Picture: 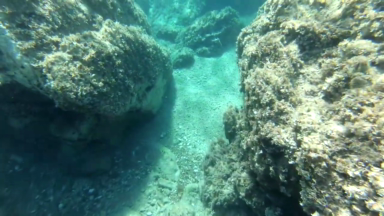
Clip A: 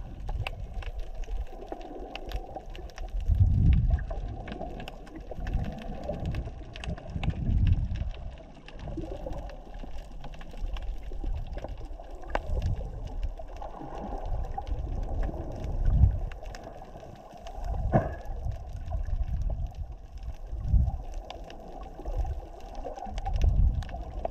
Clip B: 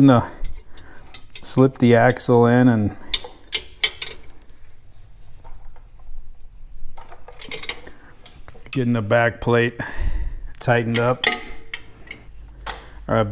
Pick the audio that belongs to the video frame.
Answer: A